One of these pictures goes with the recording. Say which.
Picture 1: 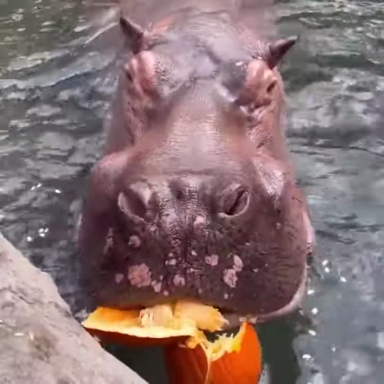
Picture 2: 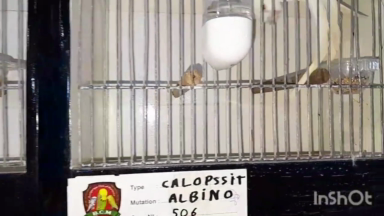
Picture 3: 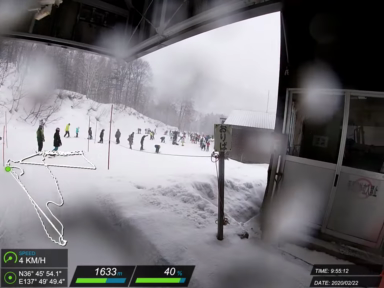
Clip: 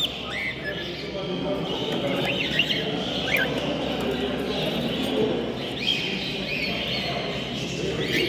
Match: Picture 2